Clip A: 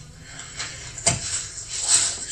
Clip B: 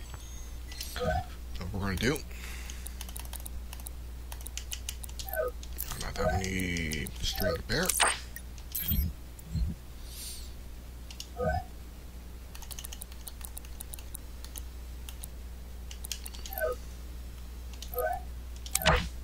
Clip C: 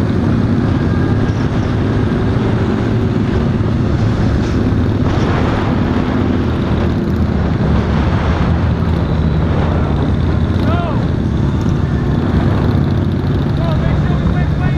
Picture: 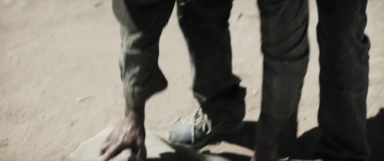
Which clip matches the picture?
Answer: A